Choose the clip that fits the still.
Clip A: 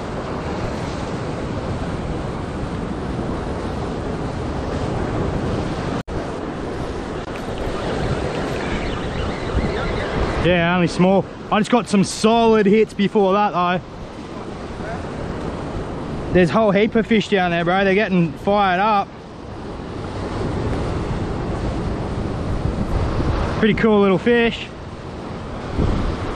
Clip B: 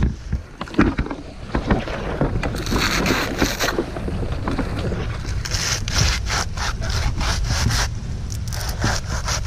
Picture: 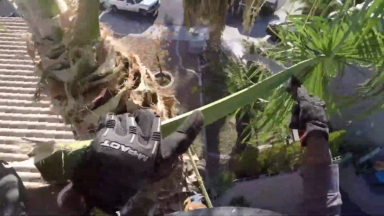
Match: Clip B